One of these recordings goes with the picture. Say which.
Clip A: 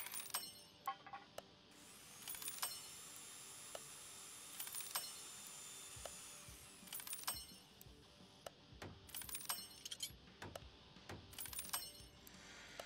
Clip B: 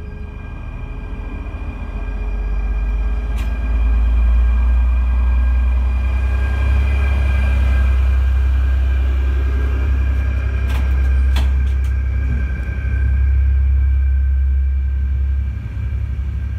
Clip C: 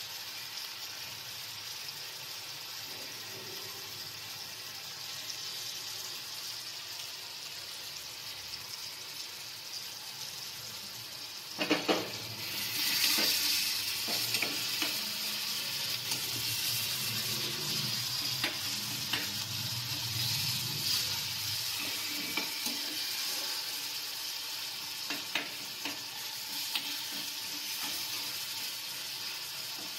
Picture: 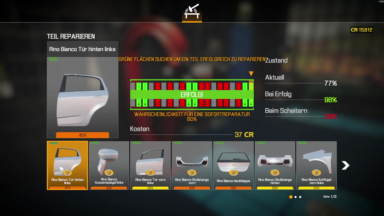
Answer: A